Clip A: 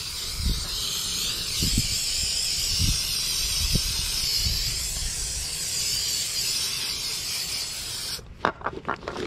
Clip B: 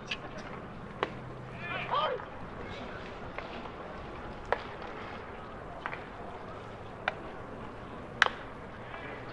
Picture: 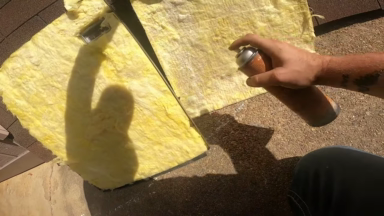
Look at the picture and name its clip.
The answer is A